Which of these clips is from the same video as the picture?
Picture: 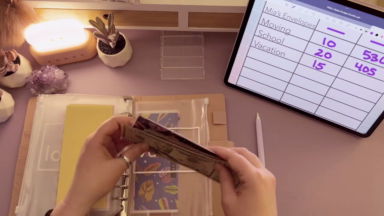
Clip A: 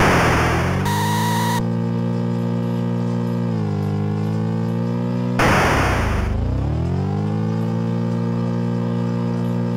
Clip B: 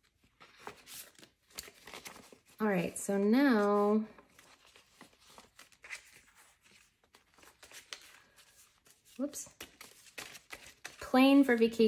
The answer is B